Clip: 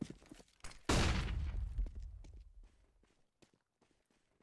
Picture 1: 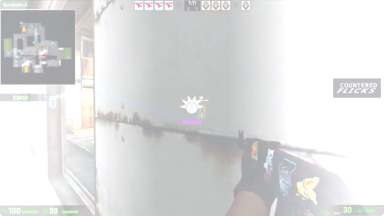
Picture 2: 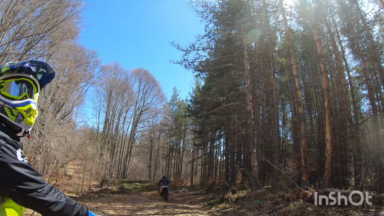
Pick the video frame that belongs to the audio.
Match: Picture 1